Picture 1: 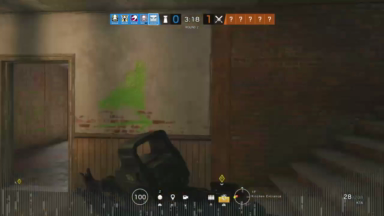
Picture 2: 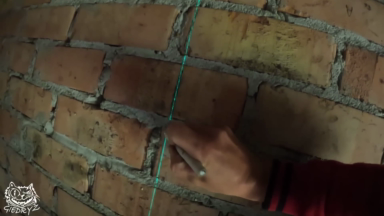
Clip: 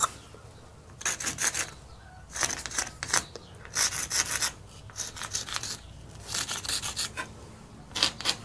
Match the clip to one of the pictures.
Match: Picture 2